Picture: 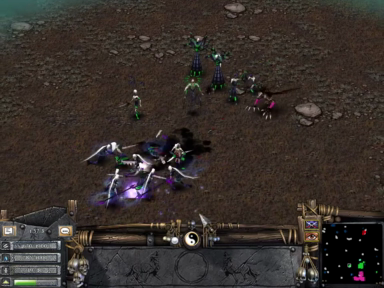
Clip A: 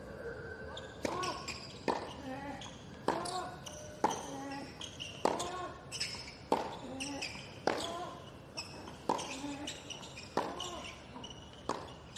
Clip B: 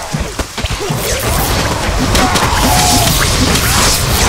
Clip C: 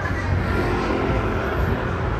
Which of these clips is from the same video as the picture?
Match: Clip B